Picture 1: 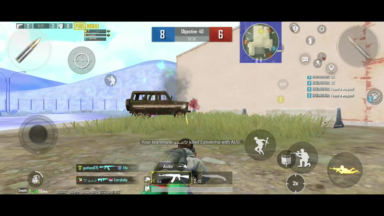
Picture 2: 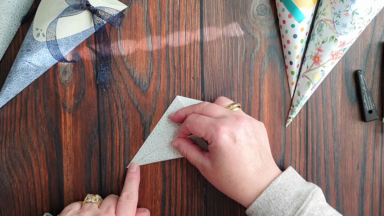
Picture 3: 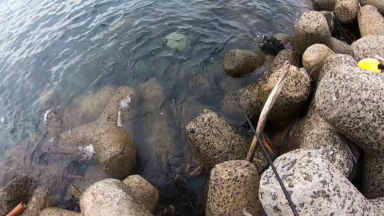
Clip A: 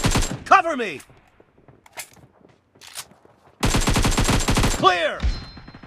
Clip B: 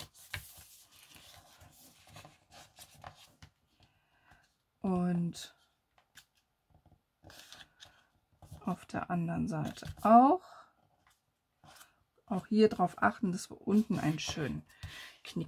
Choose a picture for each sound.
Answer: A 1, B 2